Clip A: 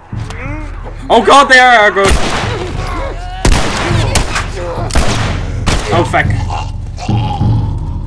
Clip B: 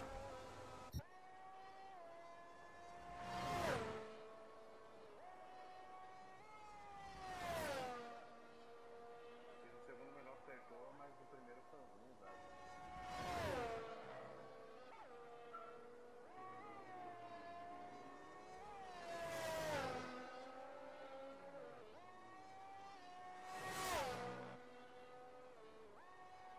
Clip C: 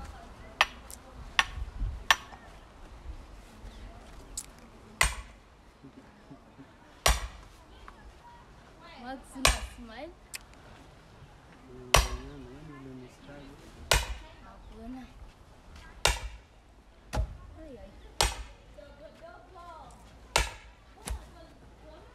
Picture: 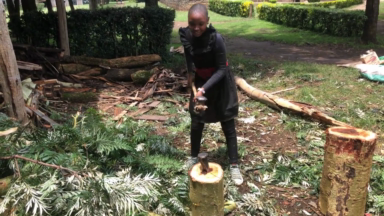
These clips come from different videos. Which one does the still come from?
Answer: C